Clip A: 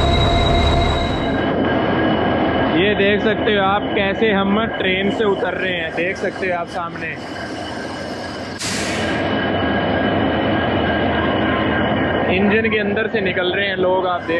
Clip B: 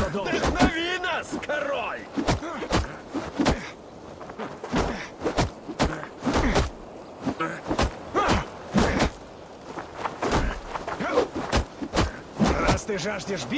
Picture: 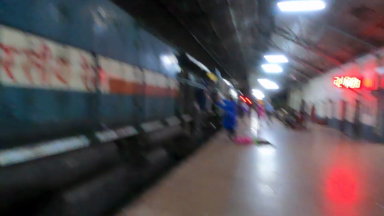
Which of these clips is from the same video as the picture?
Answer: A